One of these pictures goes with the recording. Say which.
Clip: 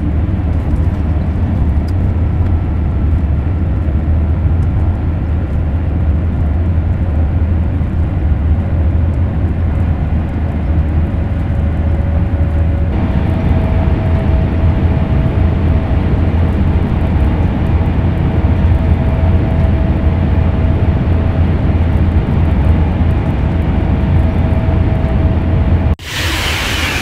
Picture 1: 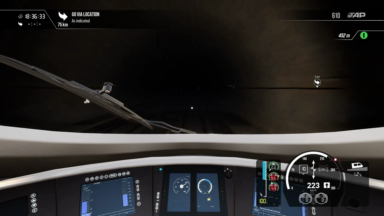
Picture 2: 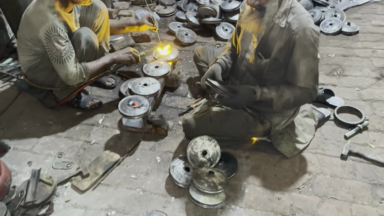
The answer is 1